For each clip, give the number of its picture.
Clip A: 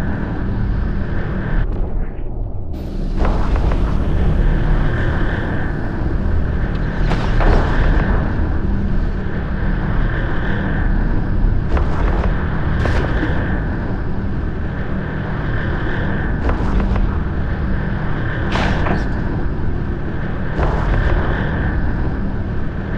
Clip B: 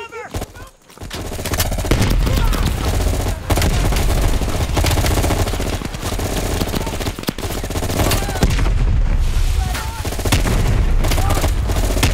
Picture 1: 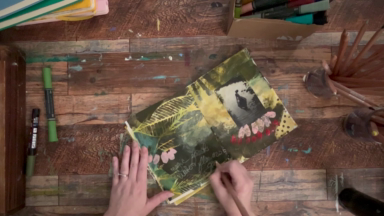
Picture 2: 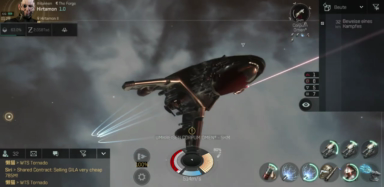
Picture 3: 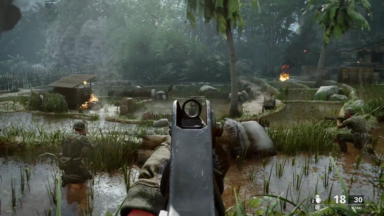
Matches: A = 2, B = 3